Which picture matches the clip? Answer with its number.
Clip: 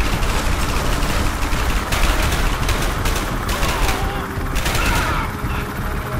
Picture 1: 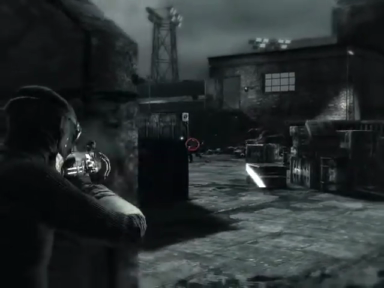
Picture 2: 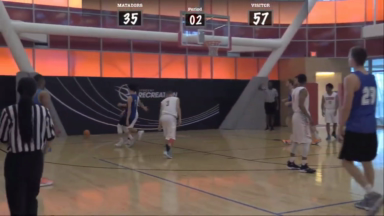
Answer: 1